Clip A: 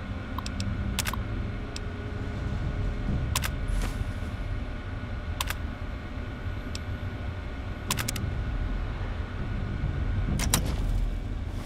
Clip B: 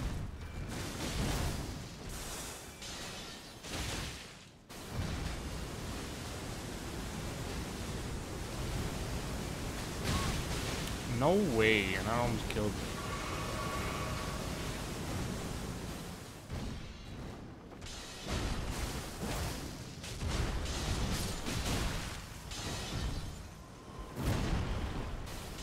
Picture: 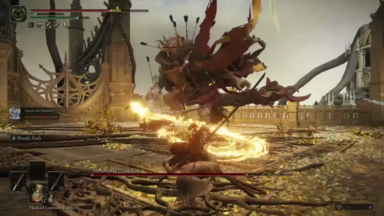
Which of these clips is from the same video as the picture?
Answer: B